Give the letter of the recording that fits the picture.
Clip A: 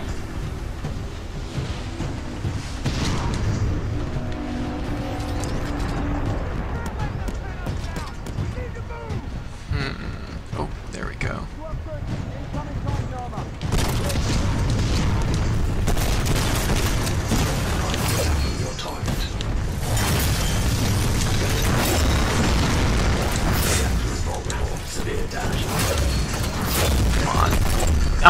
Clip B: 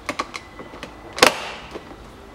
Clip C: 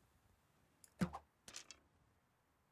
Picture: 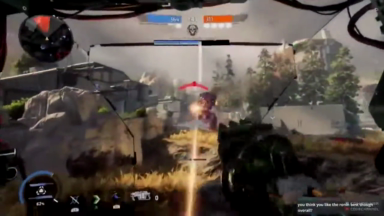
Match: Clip A